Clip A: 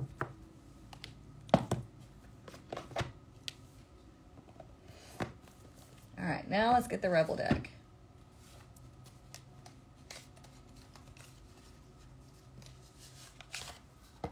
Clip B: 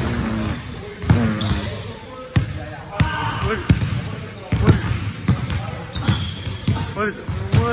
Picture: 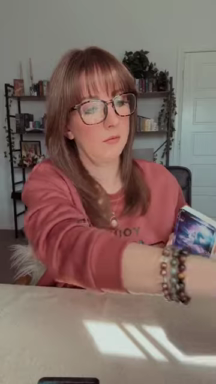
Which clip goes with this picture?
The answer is A